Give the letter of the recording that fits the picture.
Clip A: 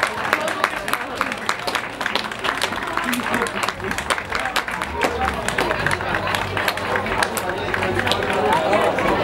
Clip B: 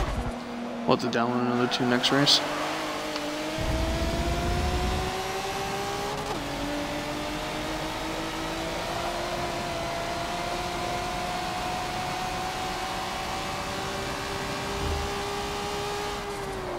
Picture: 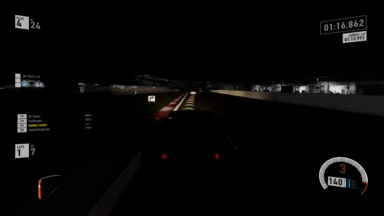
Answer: B